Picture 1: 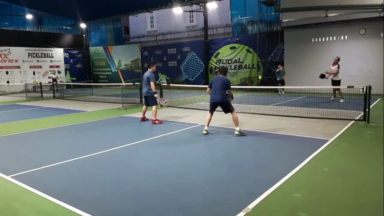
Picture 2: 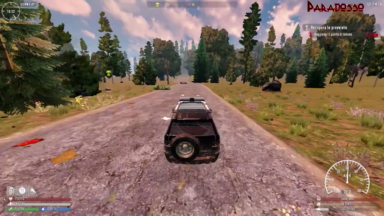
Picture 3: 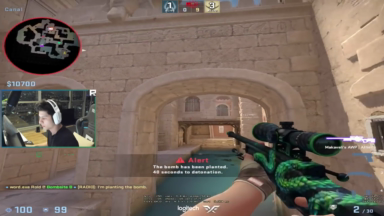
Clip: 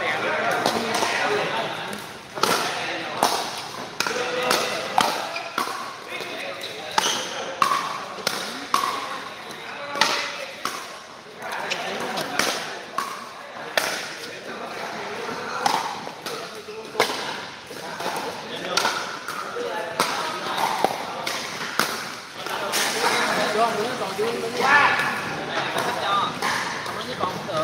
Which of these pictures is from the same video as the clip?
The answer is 1